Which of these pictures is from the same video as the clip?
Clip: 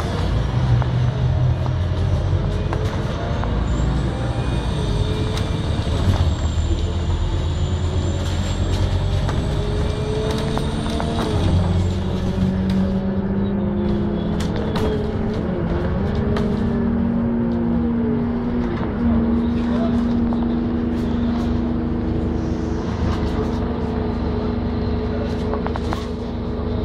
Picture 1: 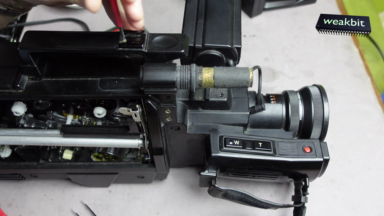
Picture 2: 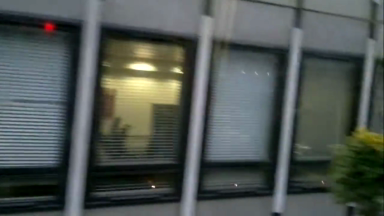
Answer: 2